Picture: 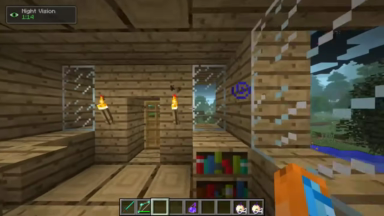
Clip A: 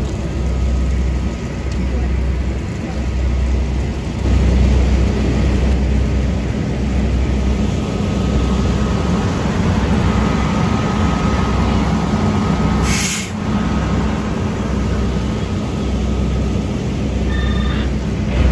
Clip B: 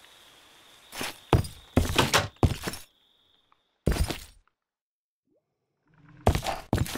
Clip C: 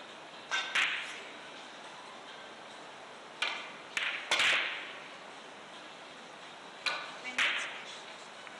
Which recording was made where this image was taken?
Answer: B